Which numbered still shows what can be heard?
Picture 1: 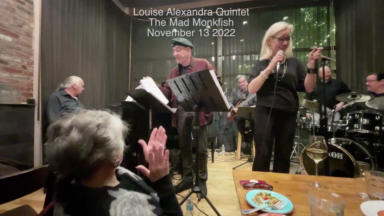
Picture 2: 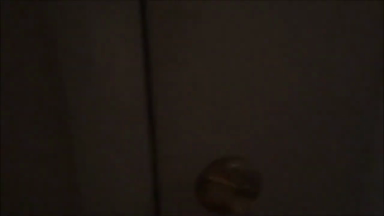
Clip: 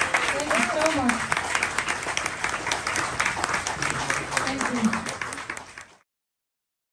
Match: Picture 1